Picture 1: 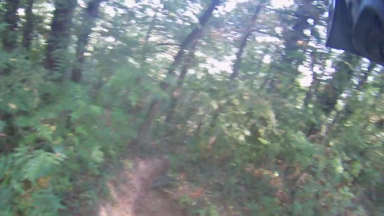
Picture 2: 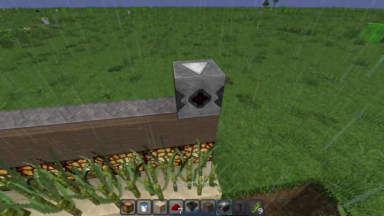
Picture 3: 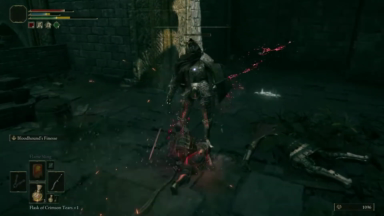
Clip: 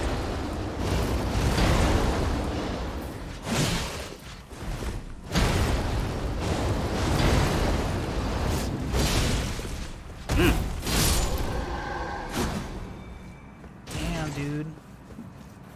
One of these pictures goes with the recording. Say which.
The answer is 3